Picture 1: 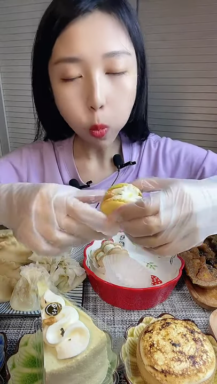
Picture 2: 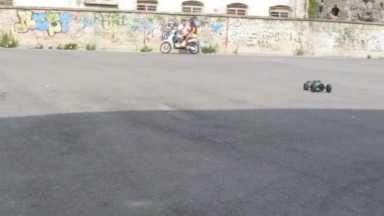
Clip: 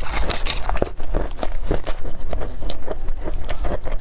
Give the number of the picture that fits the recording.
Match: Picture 1